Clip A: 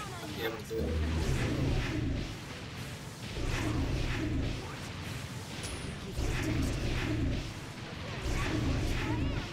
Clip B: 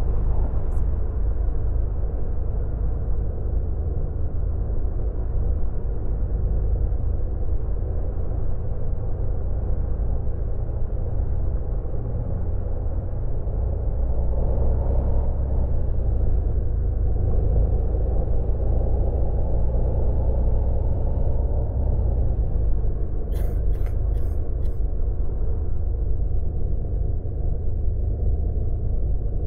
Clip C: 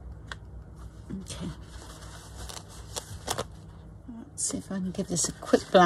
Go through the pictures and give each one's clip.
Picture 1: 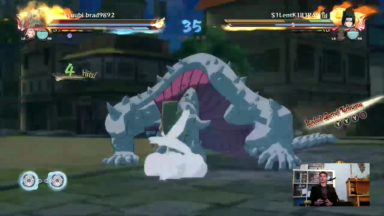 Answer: A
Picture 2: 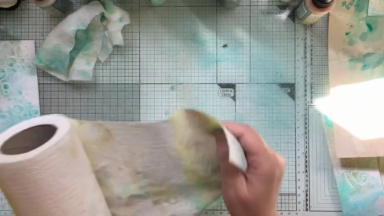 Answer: C